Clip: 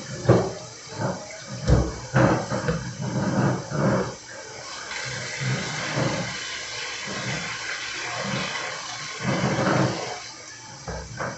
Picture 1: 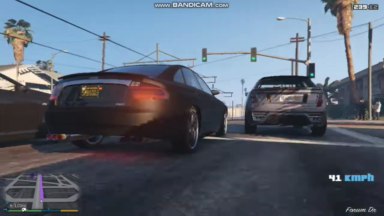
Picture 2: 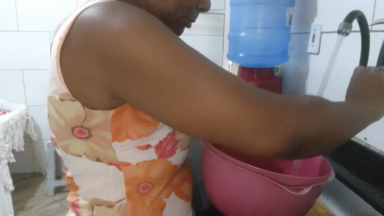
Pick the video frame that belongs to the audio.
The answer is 2